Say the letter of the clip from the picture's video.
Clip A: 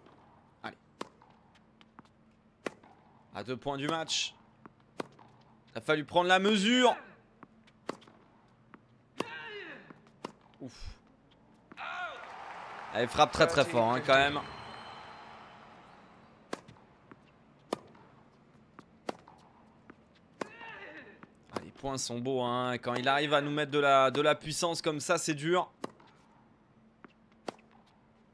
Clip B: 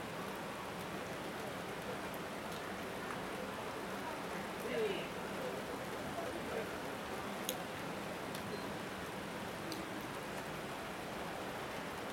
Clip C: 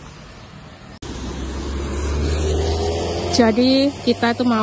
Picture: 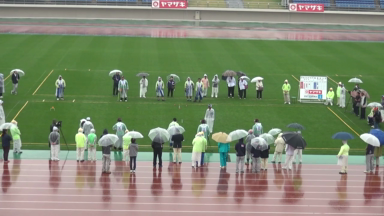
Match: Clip B